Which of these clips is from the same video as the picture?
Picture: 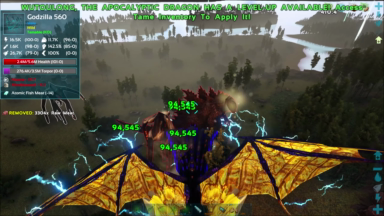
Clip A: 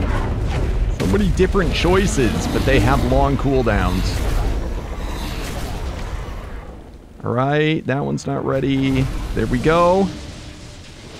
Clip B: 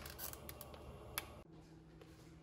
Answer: A